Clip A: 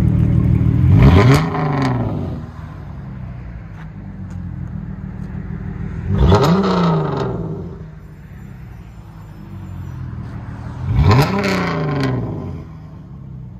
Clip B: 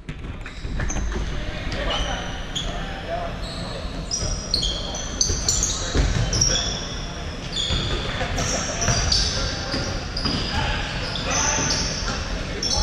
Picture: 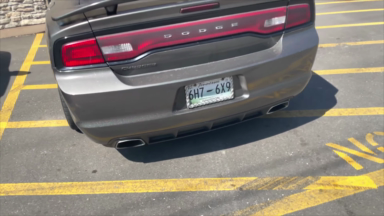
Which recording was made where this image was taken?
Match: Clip A